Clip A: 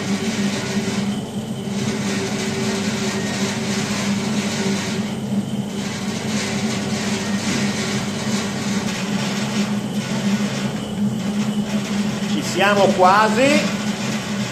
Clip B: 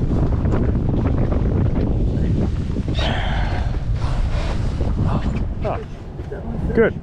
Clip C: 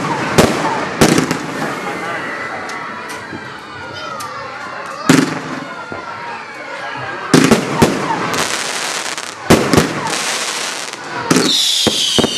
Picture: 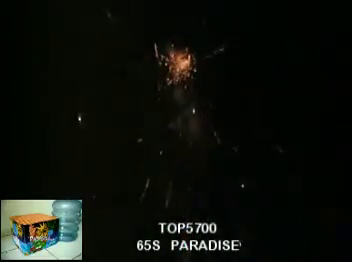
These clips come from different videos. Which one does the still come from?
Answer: C